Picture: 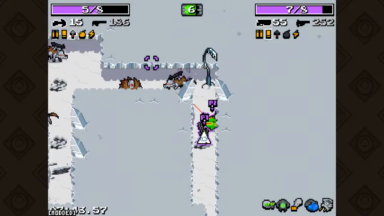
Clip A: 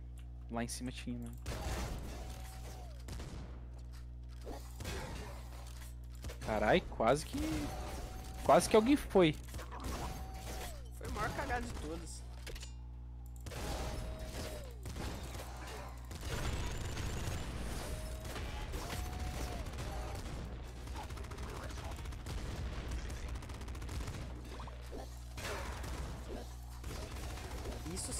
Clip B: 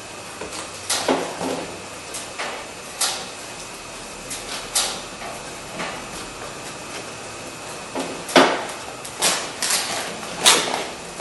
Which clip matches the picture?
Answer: A